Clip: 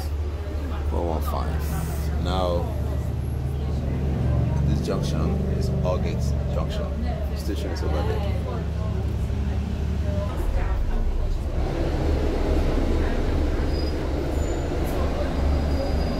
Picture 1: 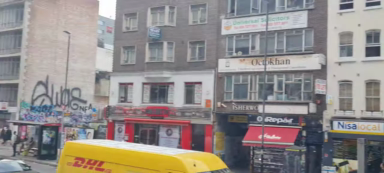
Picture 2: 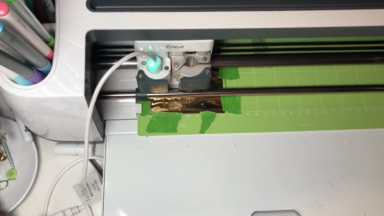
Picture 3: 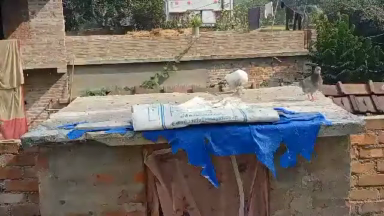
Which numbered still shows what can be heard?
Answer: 1